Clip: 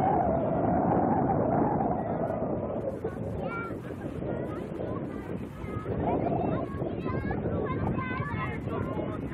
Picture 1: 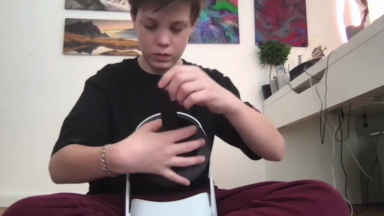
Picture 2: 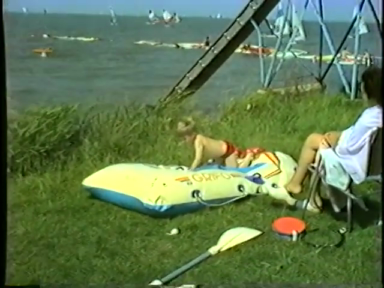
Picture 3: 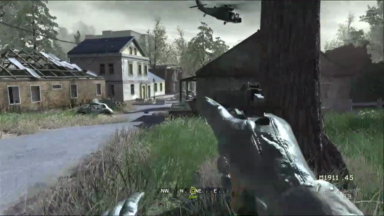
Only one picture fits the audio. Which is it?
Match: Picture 2